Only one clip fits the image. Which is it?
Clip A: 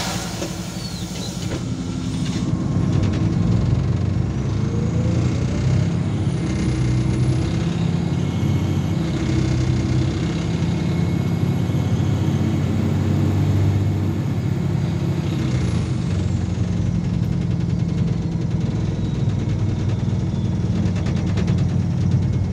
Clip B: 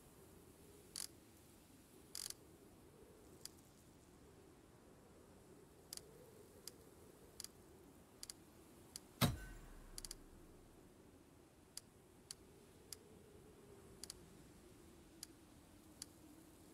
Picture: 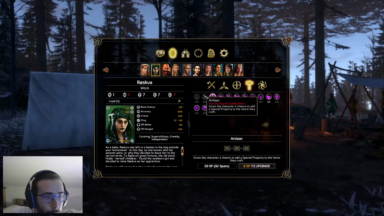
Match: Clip B